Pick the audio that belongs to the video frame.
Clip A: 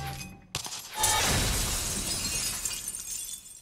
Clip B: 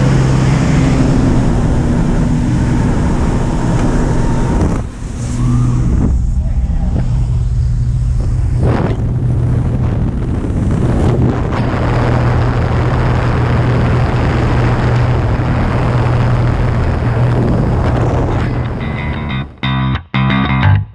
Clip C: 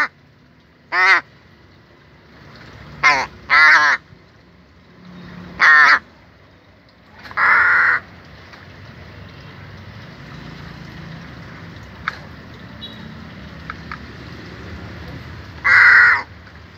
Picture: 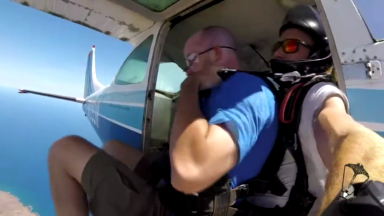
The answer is B